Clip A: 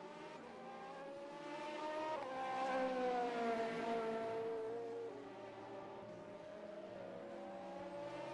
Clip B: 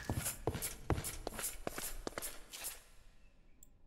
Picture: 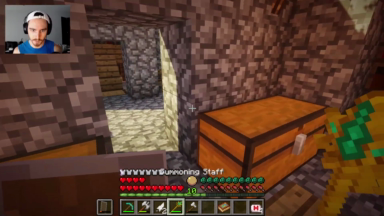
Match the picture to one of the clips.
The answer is B